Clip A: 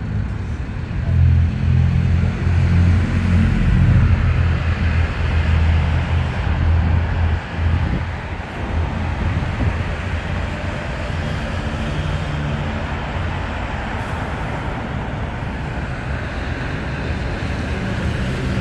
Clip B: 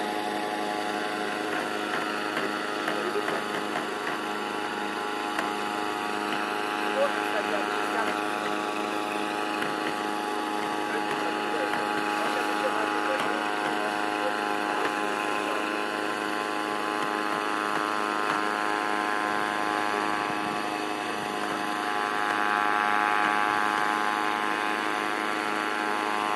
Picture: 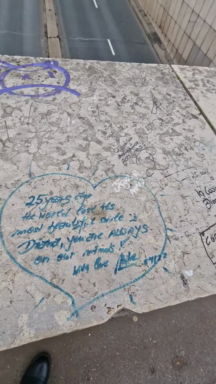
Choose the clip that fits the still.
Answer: A